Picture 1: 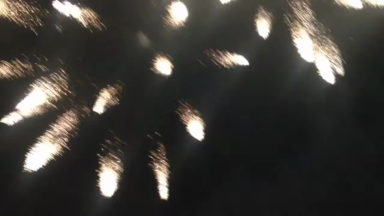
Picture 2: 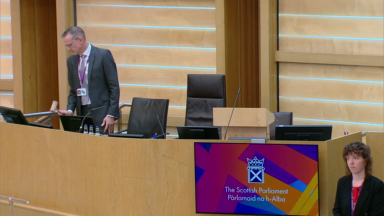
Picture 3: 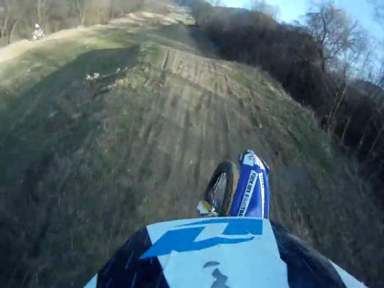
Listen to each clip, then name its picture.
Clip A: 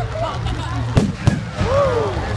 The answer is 1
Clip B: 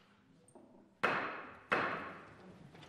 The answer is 2